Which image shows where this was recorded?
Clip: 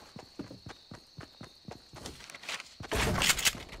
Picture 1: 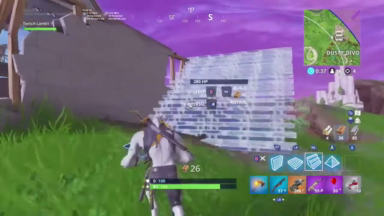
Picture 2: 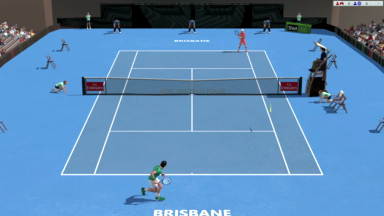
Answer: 1